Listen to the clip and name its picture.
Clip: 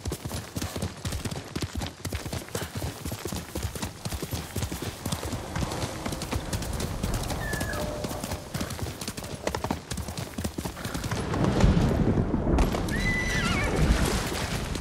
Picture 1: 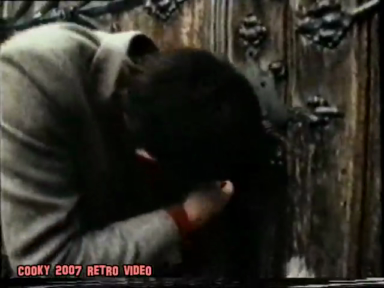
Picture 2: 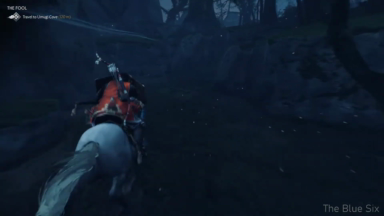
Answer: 2